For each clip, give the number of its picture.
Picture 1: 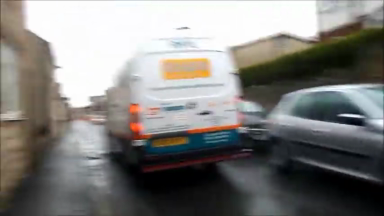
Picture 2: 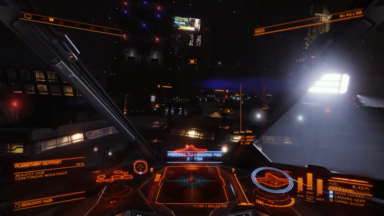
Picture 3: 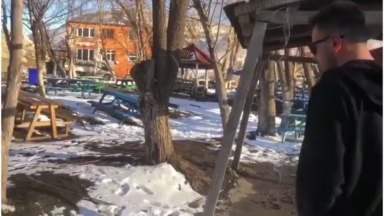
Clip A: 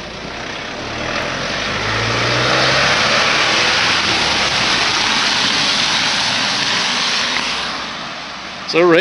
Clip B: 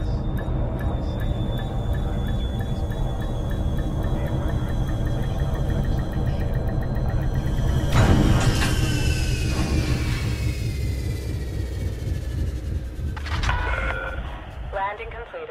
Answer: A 1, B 2